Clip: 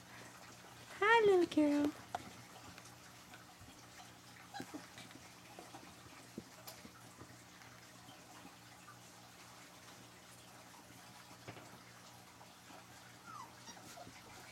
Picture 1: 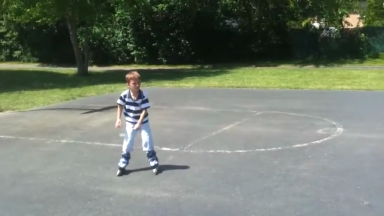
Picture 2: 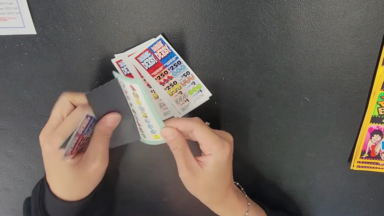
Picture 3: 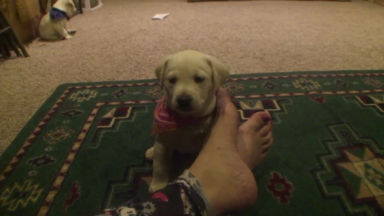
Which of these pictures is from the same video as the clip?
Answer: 3